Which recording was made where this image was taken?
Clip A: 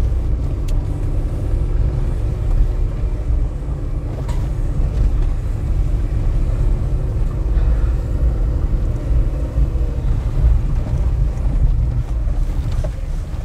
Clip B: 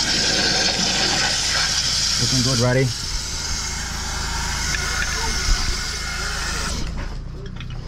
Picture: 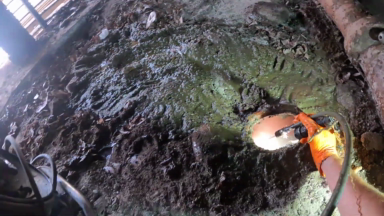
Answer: B